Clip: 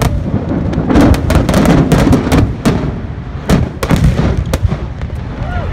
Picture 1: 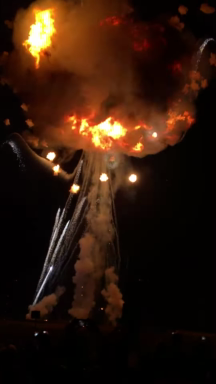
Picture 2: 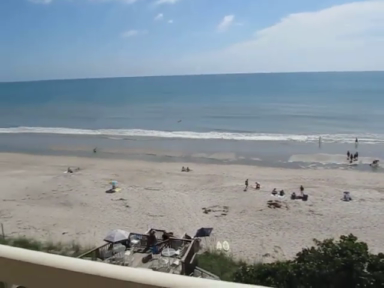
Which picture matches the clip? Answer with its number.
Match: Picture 1